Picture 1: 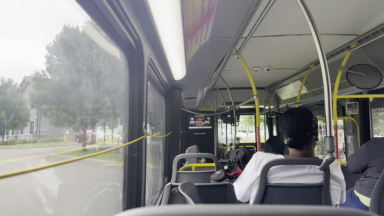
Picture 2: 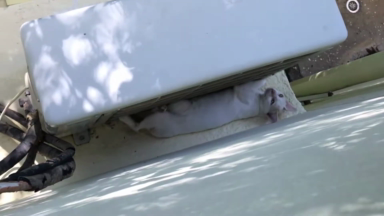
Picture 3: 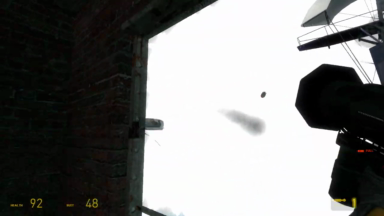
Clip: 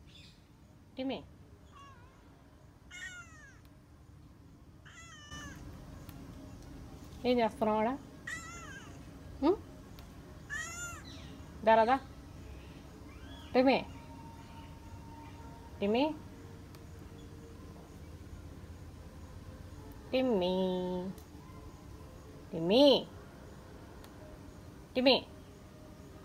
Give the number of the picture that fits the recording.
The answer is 2